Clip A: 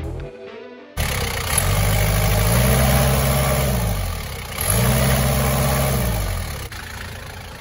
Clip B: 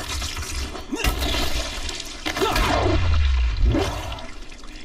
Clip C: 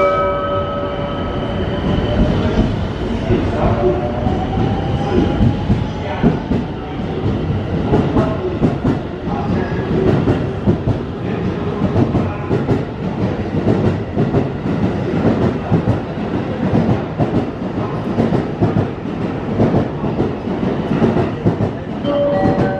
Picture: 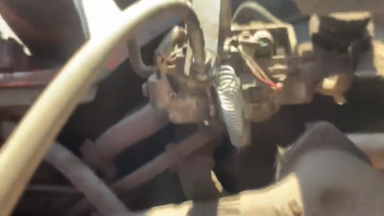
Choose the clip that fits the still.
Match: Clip A